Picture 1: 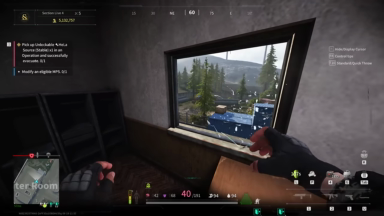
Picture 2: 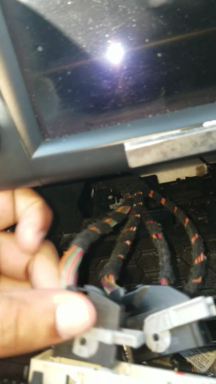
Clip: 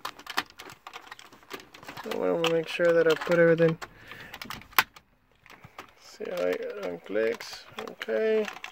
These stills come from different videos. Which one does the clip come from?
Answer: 2